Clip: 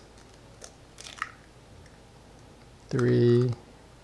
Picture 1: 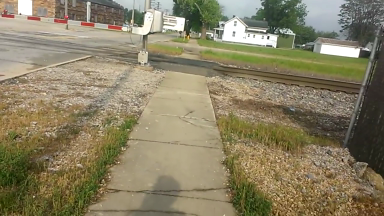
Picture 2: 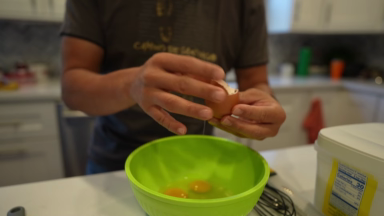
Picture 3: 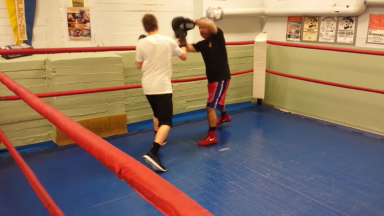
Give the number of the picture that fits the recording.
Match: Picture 2